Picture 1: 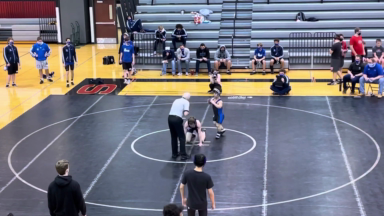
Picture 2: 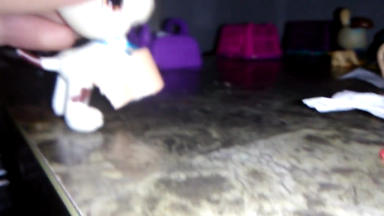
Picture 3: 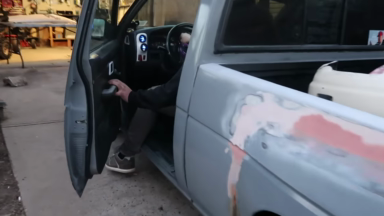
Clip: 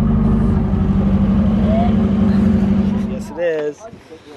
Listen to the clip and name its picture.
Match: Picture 3